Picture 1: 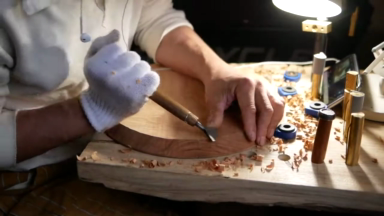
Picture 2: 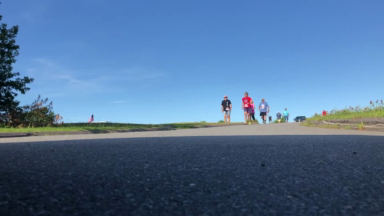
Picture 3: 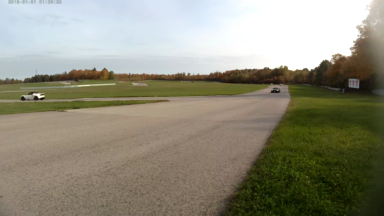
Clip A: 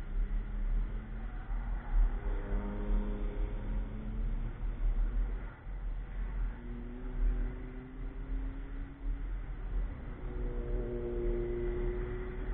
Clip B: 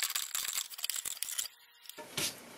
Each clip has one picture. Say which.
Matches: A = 3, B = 1